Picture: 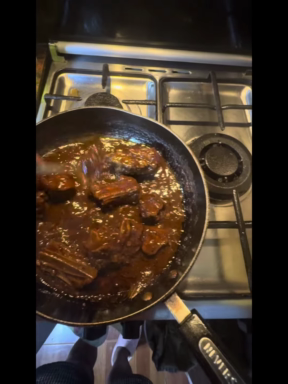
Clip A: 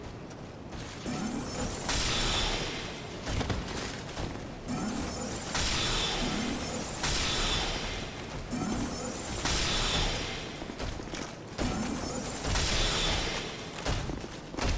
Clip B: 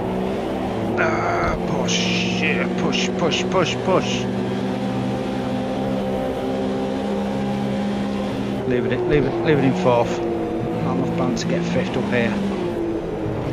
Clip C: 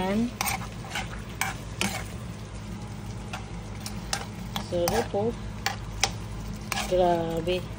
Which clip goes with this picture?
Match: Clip C